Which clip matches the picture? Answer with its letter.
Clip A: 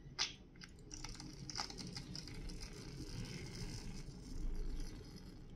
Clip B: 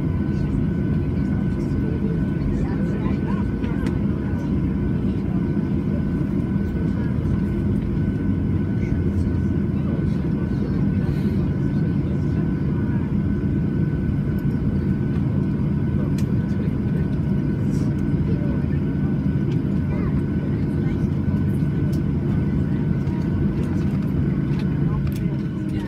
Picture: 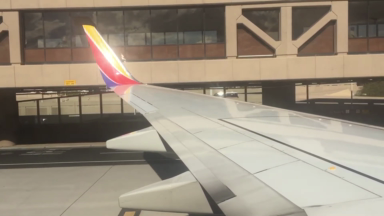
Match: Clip B